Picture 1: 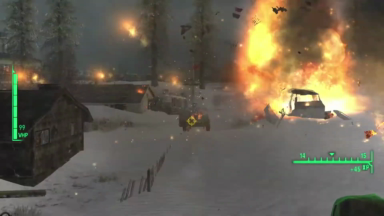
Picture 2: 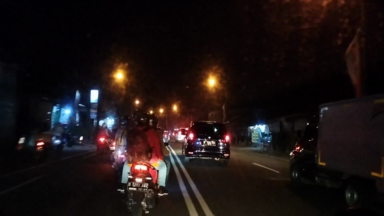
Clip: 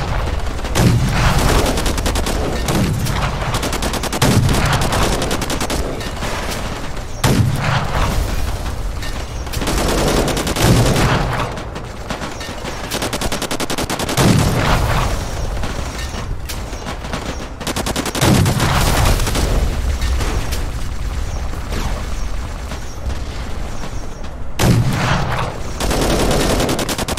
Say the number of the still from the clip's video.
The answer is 1